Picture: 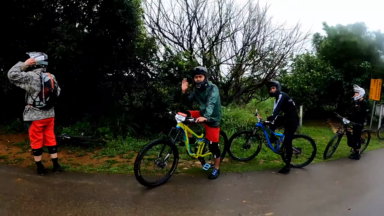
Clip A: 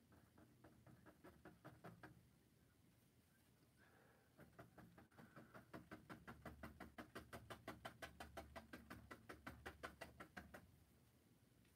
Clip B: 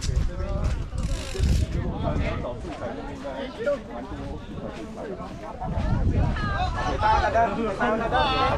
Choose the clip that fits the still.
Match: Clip B